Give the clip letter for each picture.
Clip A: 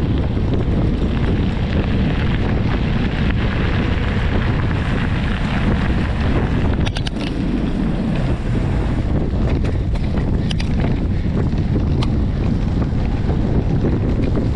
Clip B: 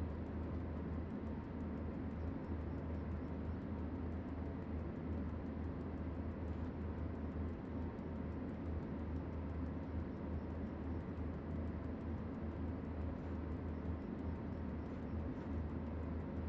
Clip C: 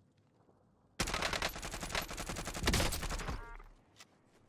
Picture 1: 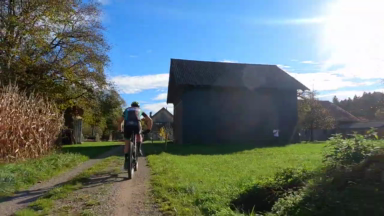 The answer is A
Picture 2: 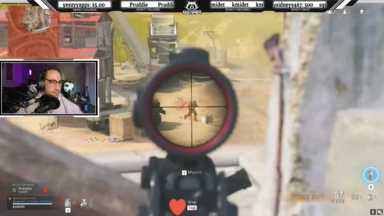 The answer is C